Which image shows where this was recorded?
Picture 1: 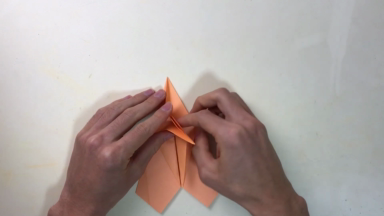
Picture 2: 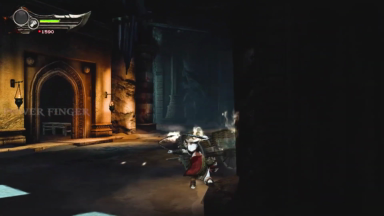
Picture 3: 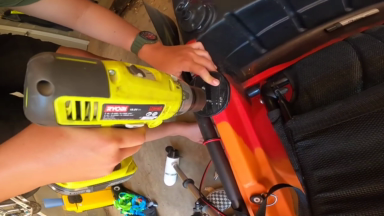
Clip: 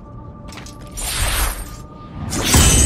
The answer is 2